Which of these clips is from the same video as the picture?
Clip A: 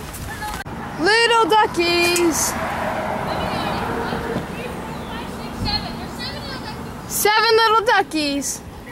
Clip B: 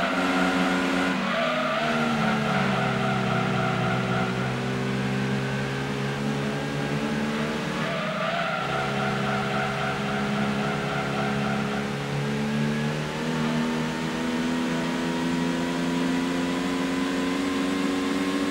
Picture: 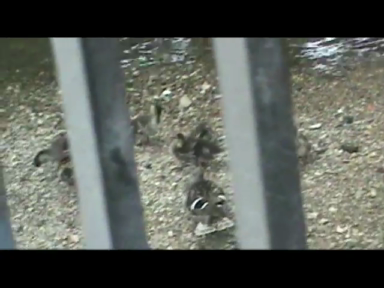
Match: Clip A